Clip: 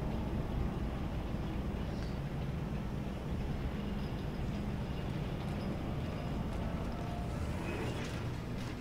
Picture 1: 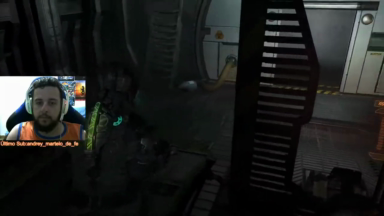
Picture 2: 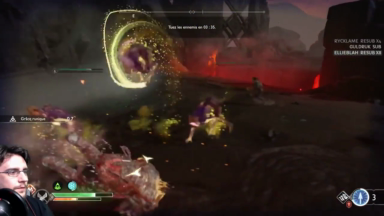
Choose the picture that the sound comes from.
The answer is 1